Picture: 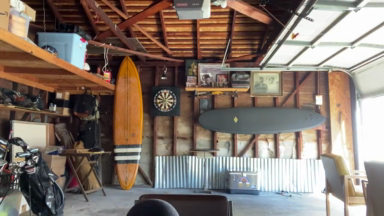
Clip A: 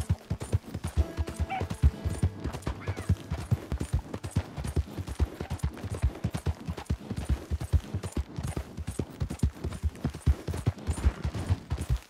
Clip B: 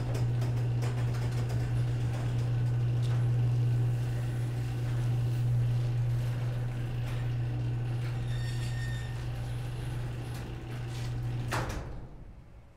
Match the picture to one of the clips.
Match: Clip B